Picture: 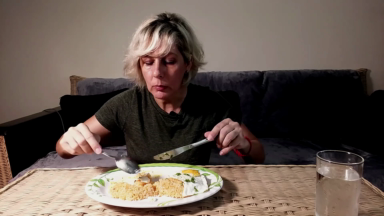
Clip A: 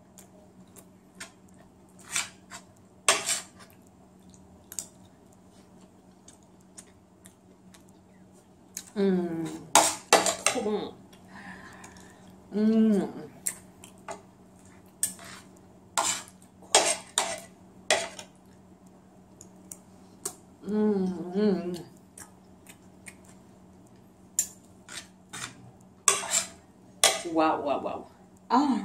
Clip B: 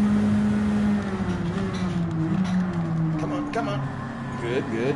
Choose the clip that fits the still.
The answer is A